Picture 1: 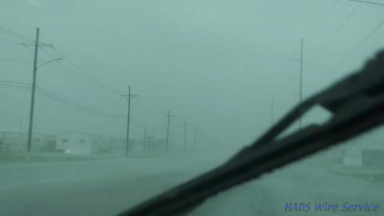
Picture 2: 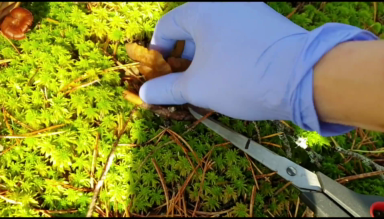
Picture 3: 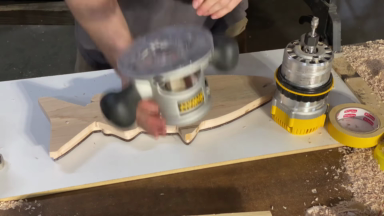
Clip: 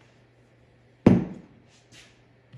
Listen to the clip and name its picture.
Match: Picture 3